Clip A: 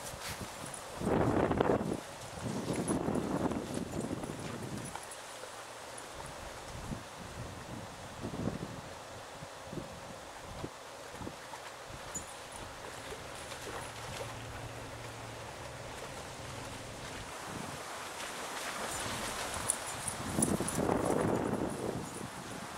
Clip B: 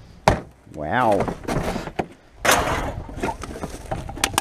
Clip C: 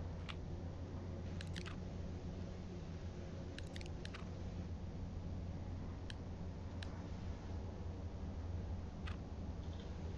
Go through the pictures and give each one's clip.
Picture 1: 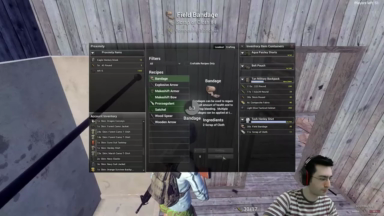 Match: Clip C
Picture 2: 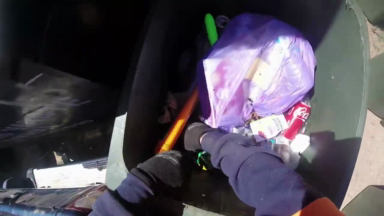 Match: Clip B